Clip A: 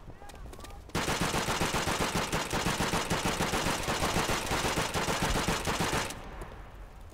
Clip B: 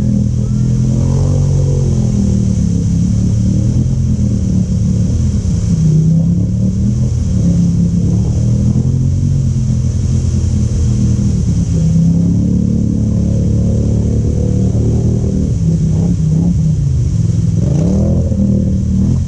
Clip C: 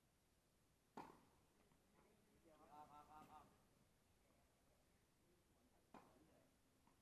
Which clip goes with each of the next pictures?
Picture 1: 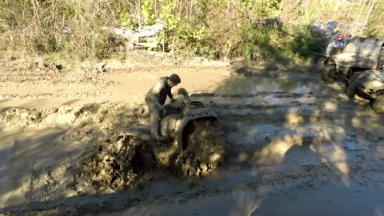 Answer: B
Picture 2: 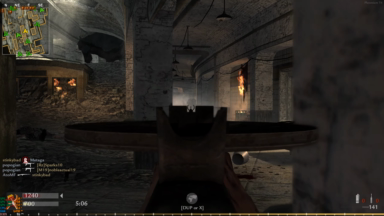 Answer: A